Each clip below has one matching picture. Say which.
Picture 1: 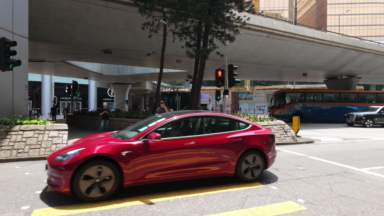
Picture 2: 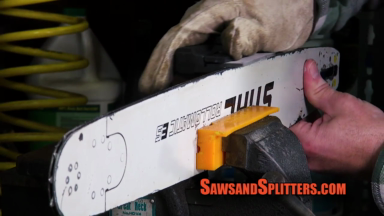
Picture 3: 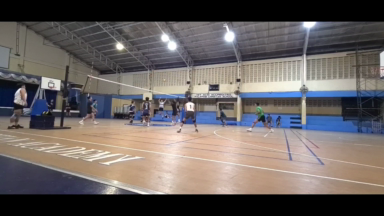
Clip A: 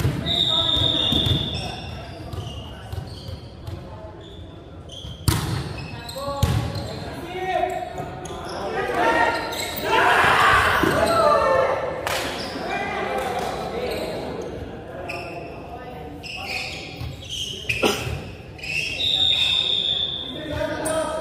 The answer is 3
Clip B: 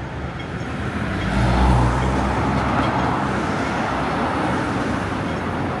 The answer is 1